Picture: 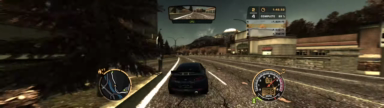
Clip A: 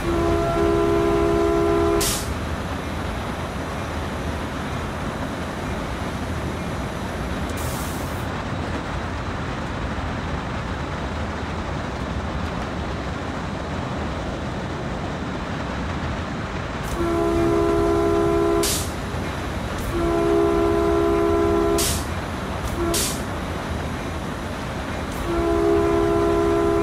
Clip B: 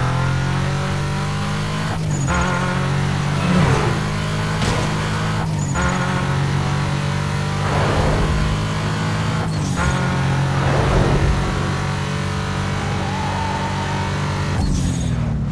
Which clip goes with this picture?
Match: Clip B